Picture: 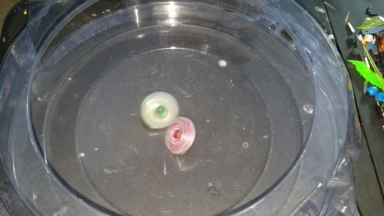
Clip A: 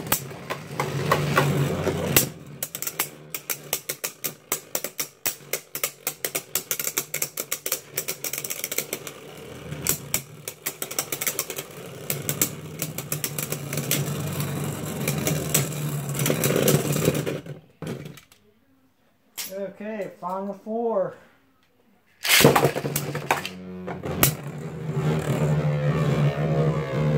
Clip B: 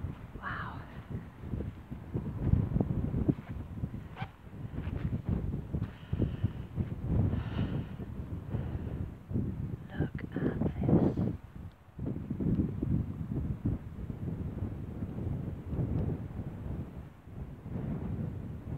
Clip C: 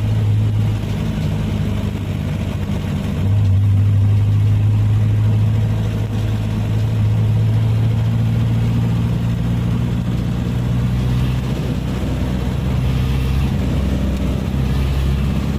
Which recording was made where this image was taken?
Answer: A